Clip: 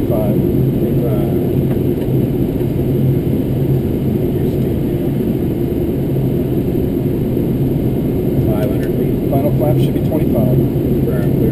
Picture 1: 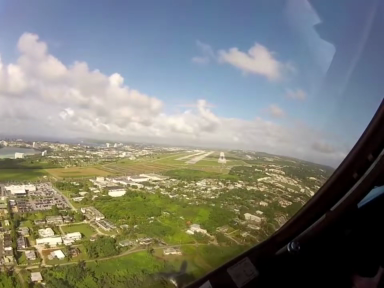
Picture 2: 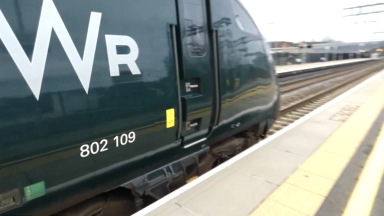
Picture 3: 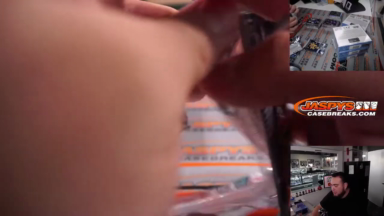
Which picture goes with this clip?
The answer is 1